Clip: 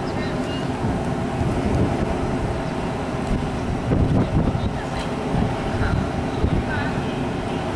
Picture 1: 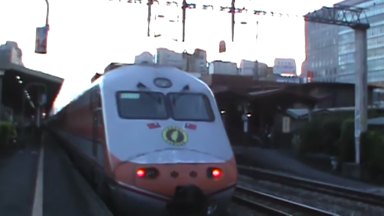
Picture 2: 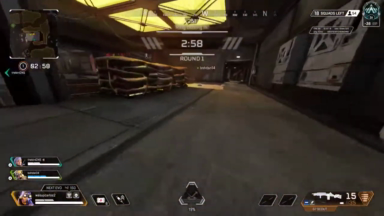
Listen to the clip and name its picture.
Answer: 1